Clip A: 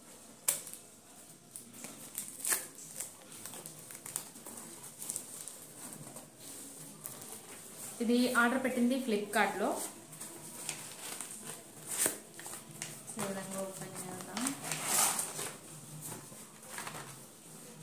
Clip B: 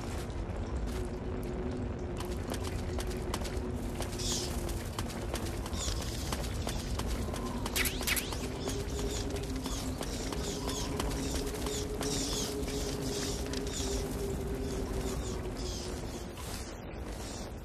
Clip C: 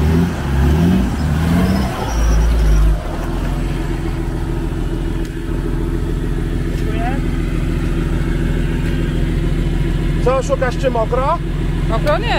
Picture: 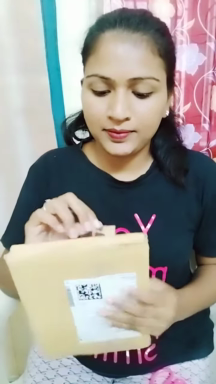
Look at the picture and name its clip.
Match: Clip A